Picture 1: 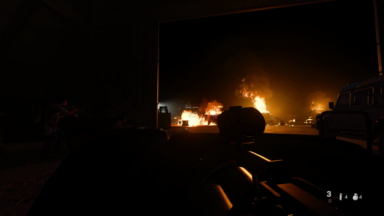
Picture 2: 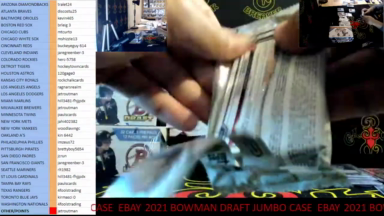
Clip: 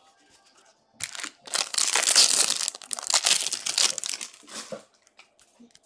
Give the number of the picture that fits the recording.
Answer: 2